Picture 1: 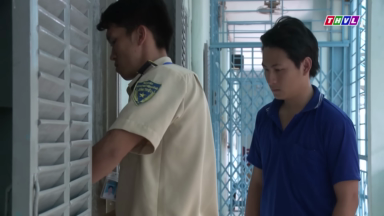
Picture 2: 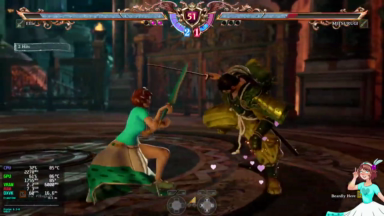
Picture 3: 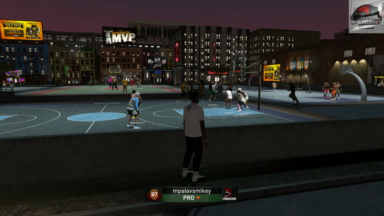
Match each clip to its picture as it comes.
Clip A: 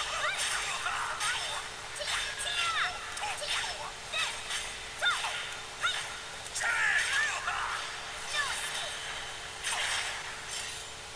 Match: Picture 2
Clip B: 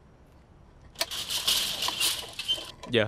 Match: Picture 1